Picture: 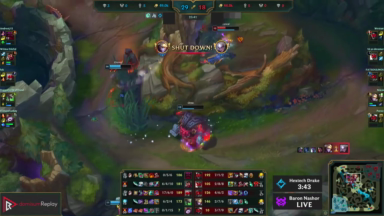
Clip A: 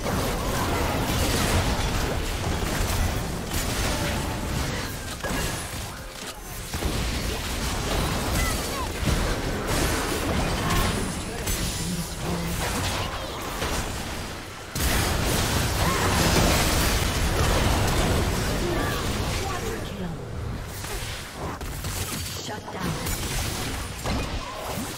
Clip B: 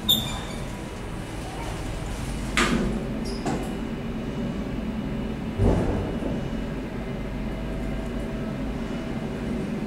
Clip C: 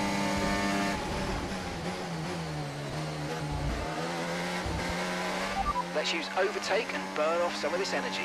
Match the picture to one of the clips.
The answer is A